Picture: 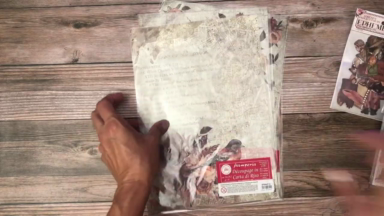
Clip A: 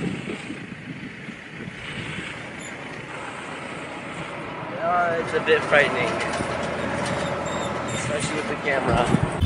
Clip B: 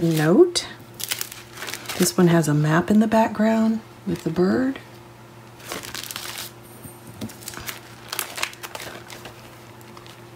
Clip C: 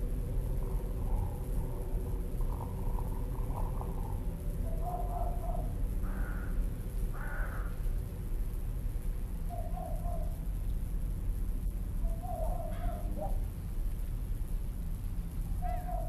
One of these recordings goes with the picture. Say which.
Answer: B